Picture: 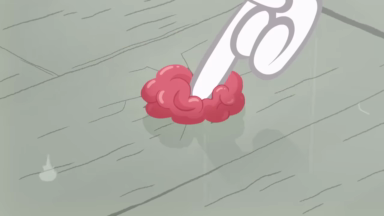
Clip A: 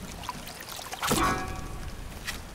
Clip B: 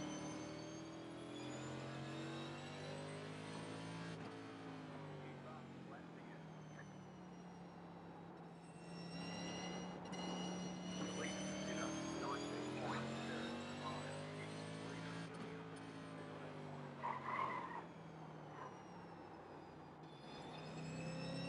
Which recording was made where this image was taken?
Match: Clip A